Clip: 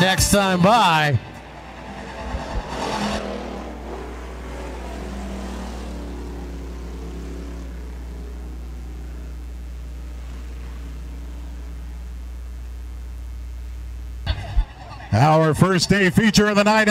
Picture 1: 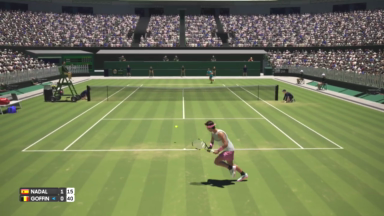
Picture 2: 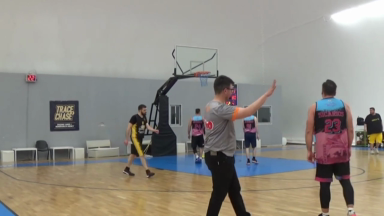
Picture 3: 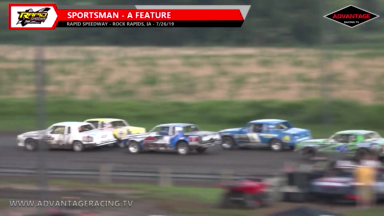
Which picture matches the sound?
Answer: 3